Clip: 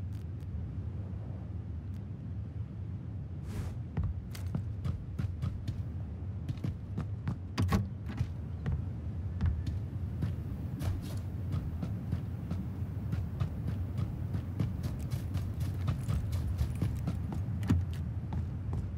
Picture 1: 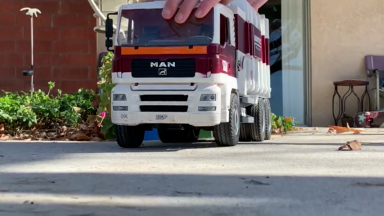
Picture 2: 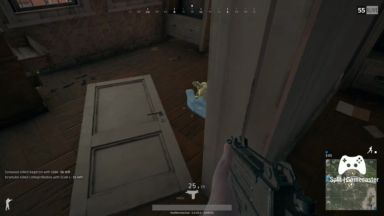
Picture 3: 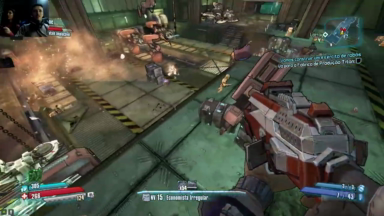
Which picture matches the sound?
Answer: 2